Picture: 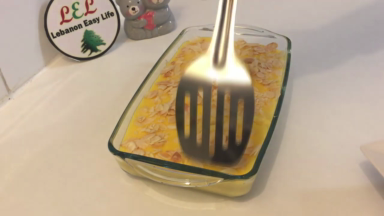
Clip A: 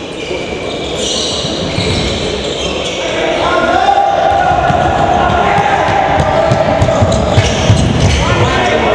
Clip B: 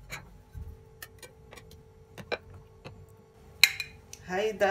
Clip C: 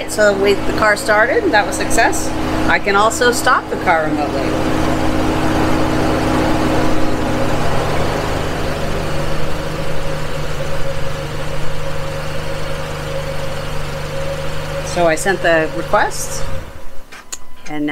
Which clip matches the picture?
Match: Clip B